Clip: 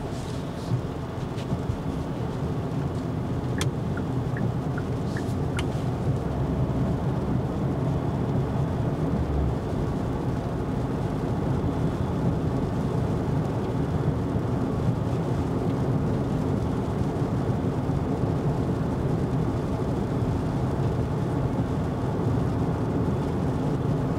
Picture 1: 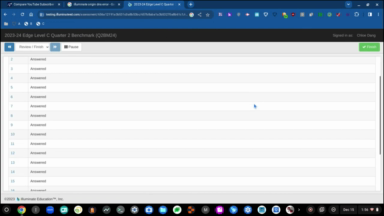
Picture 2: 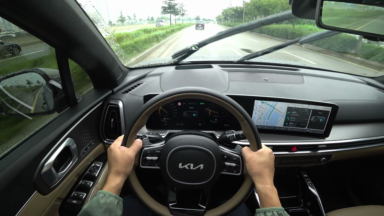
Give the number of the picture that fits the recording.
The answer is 2